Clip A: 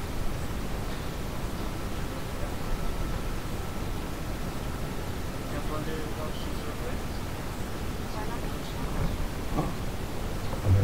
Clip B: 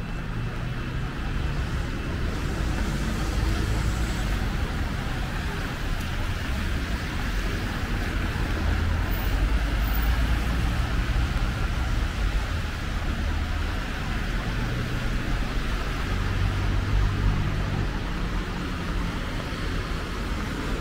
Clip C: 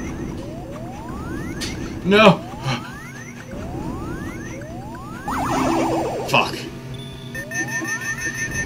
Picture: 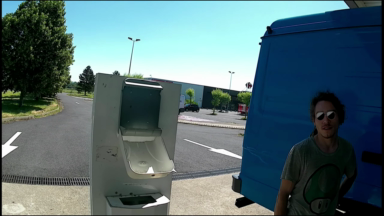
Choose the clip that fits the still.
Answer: A